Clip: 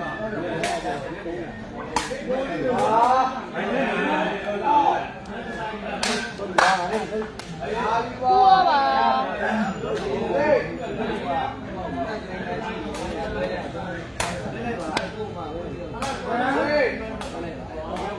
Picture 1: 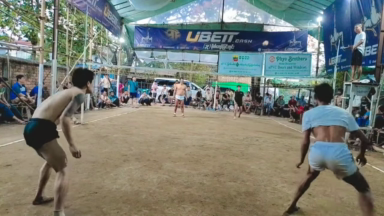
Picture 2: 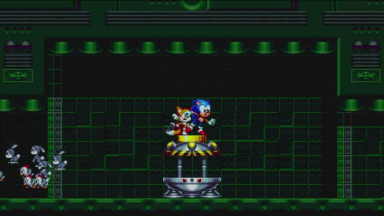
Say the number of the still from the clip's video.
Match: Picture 1